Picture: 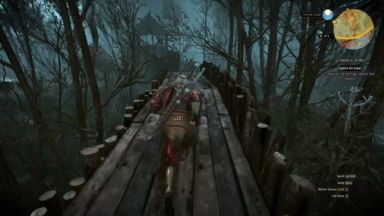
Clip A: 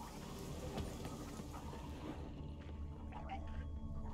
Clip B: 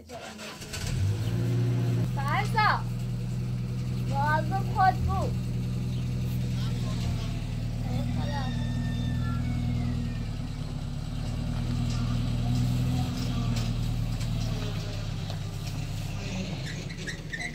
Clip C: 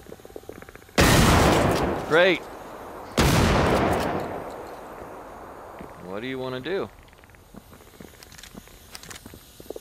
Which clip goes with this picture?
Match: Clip A